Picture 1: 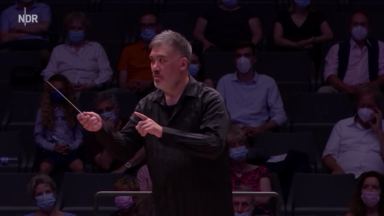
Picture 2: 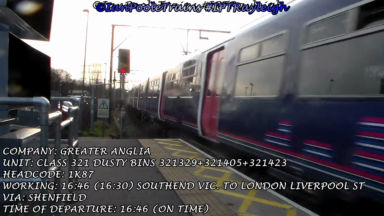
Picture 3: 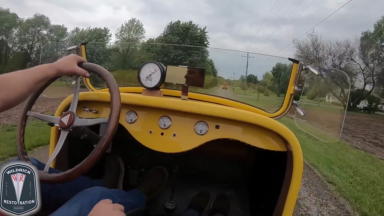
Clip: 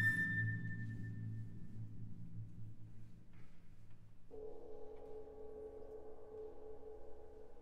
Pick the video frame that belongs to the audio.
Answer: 1